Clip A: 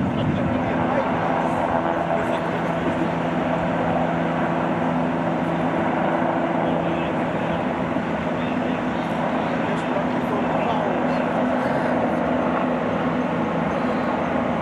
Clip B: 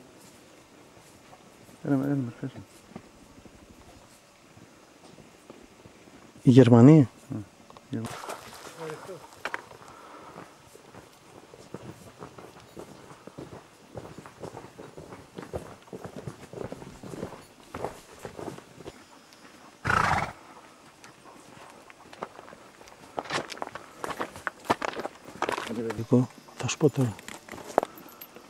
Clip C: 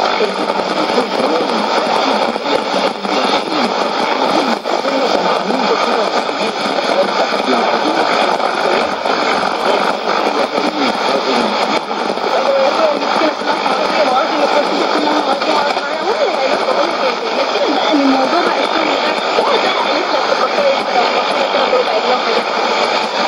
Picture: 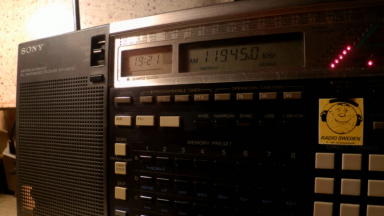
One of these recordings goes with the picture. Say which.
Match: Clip C